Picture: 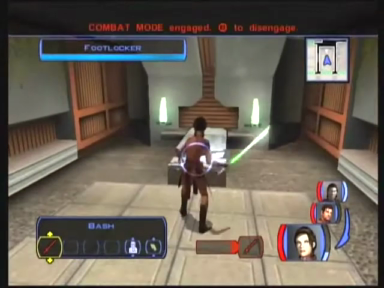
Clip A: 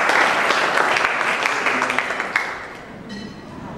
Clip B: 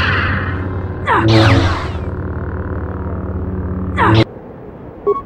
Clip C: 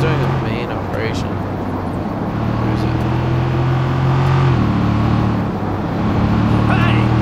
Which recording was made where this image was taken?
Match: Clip B